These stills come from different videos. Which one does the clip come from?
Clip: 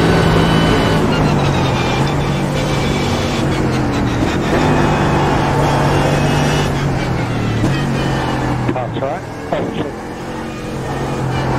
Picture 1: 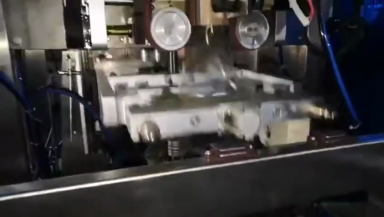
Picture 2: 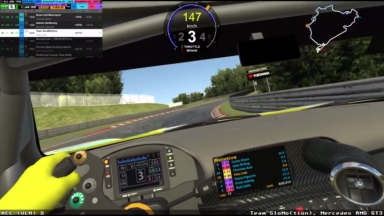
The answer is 2